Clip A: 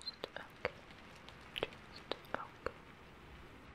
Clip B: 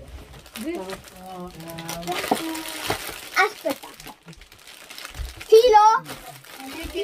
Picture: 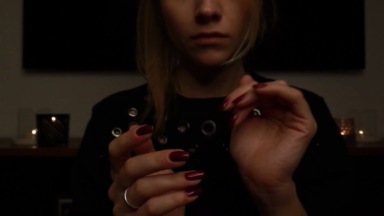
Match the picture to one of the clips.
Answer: A